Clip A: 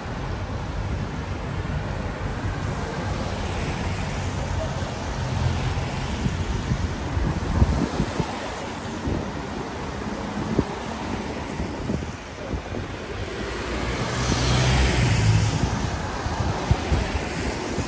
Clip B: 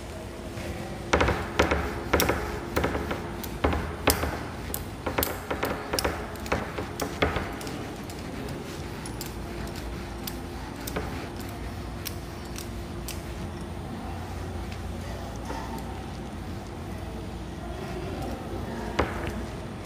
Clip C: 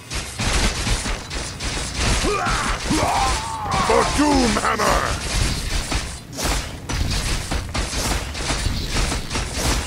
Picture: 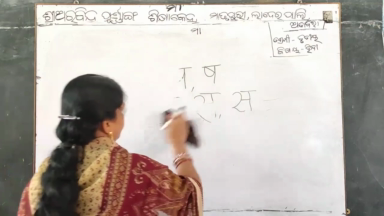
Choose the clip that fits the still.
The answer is B